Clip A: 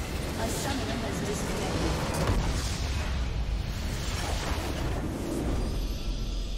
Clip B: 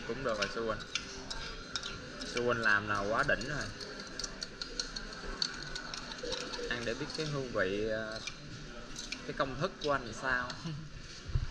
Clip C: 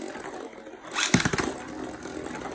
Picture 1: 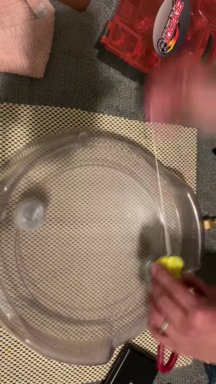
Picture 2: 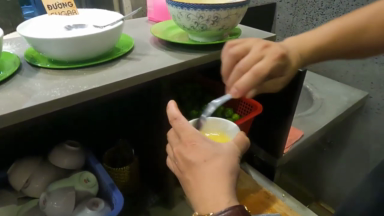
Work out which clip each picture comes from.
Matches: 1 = C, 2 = B